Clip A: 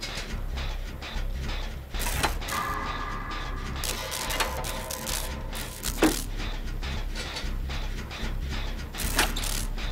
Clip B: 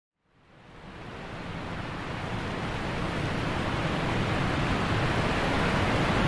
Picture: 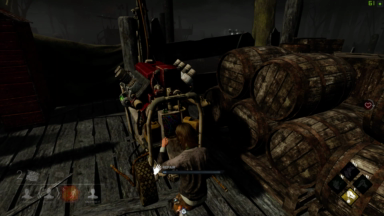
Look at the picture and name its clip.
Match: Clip A